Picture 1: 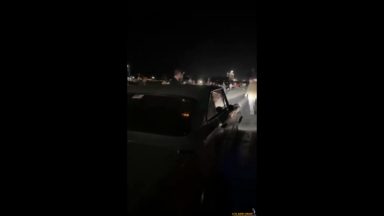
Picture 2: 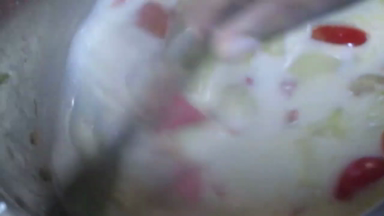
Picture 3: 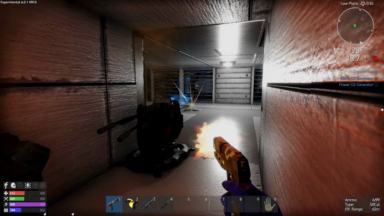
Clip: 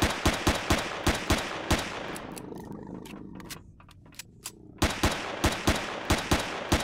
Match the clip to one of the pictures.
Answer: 3